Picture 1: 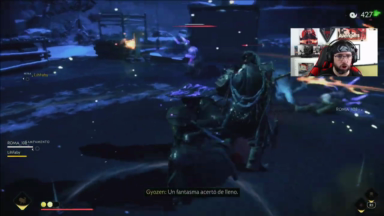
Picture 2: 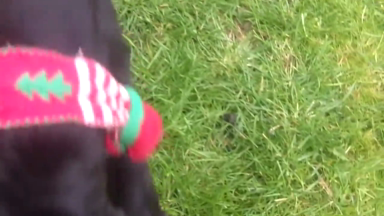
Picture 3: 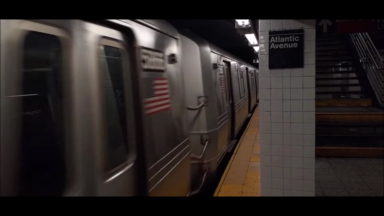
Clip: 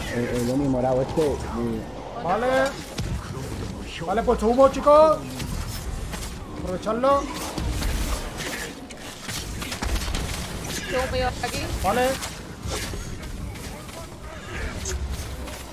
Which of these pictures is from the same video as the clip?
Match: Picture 1